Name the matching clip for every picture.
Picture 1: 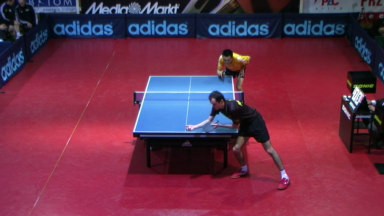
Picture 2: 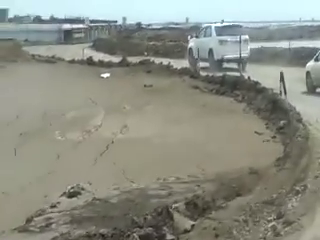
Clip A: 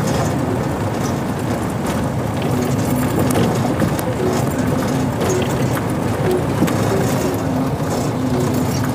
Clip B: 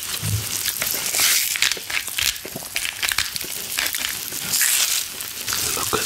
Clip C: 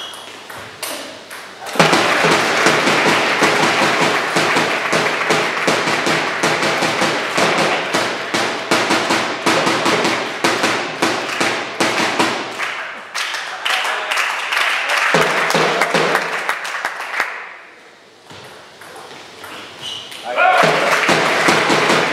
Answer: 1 C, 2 A